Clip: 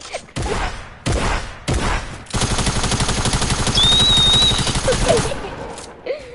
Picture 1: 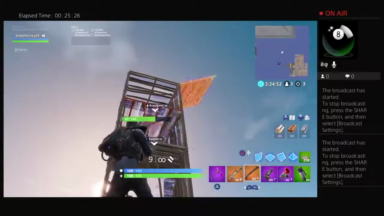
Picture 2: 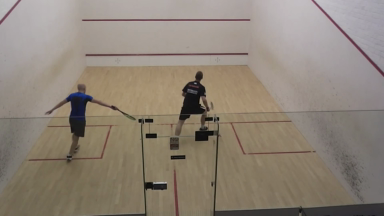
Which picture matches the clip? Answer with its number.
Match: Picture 1